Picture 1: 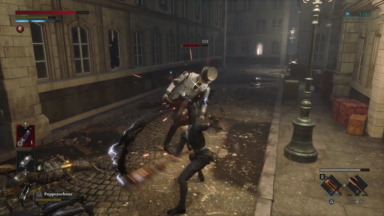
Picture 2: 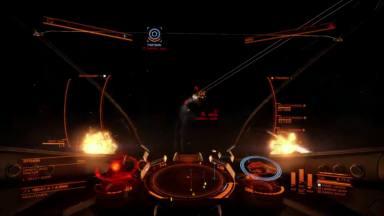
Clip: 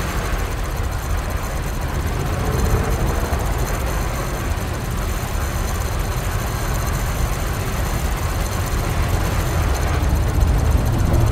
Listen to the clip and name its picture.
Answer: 2